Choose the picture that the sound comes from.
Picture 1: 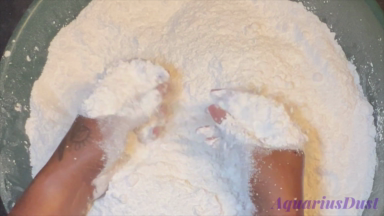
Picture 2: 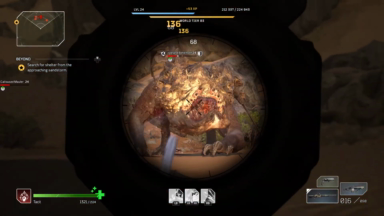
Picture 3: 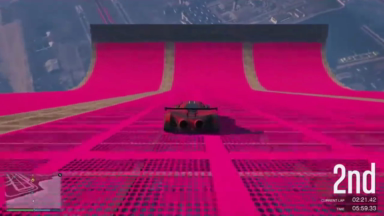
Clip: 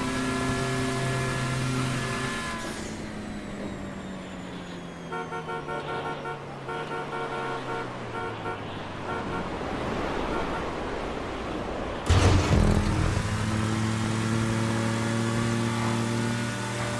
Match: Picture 3